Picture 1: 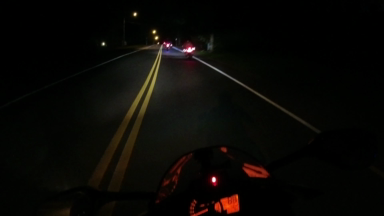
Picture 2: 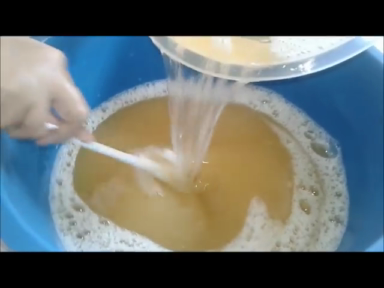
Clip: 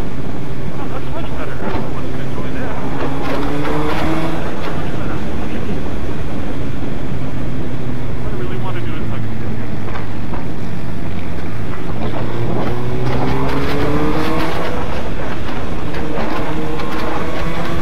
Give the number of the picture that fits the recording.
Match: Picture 1